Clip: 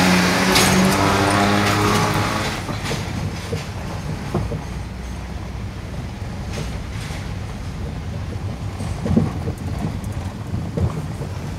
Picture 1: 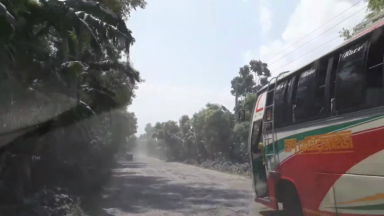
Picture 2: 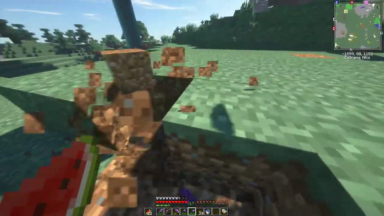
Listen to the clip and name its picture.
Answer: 1